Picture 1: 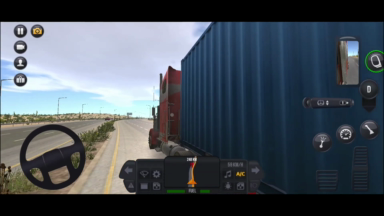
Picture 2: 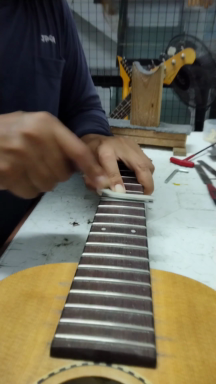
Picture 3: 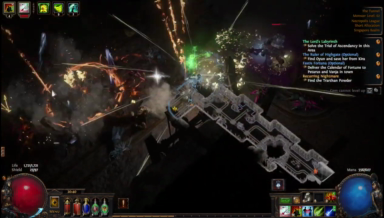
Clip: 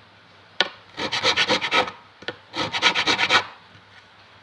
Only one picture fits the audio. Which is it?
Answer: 2